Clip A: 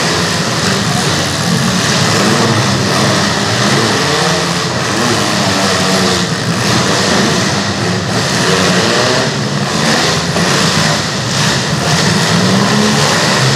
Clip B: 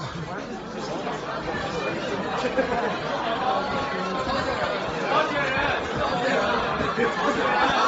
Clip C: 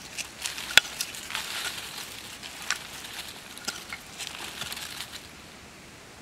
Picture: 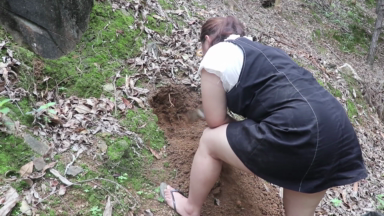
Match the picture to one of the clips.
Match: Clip C